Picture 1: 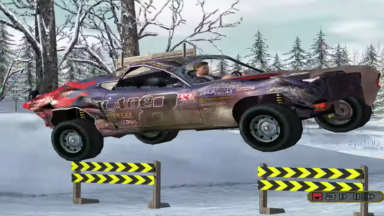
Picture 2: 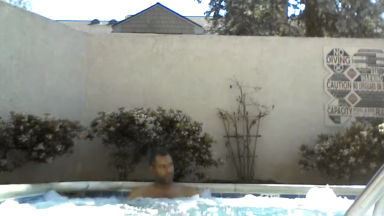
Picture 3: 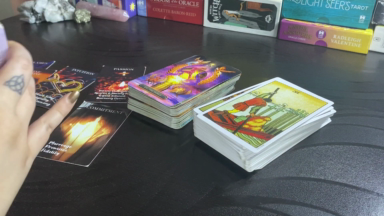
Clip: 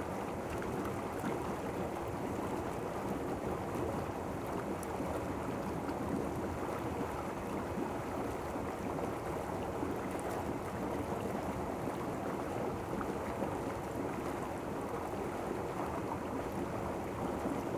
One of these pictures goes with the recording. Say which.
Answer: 2